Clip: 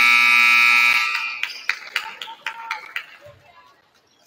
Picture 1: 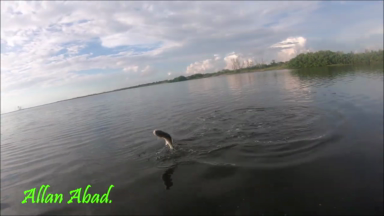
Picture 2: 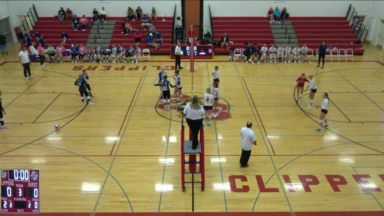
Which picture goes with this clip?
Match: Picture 2